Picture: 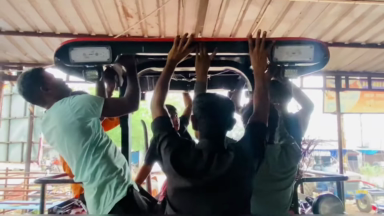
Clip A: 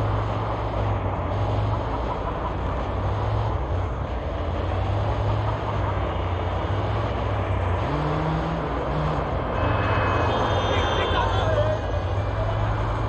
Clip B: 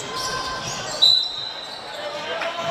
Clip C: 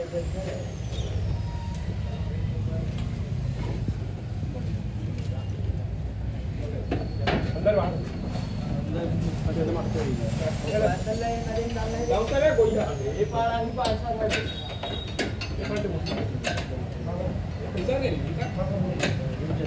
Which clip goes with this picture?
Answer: C